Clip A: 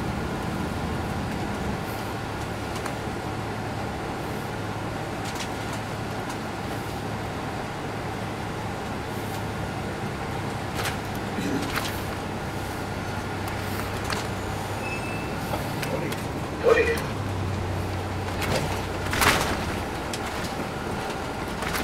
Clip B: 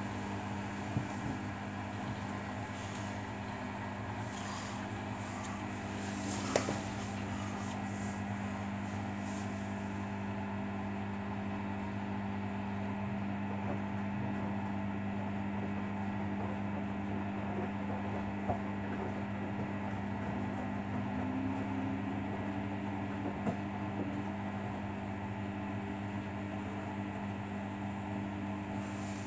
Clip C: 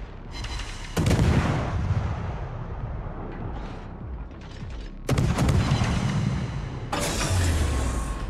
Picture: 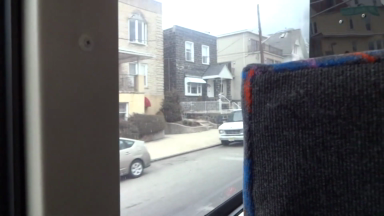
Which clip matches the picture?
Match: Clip A